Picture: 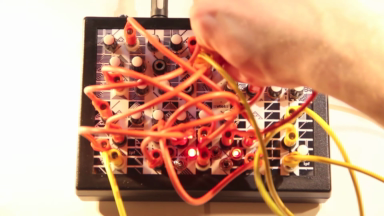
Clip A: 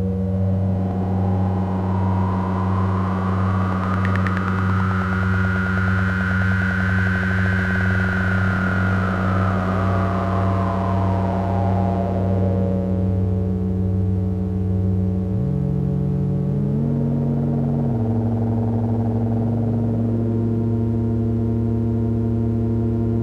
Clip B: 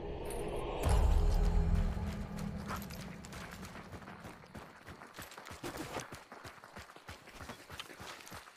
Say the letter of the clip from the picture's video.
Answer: A